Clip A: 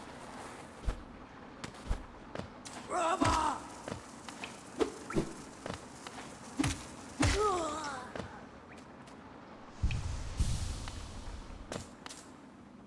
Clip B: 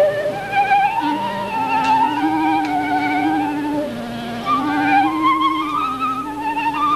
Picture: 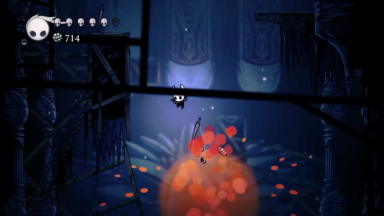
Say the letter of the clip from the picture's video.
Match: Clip A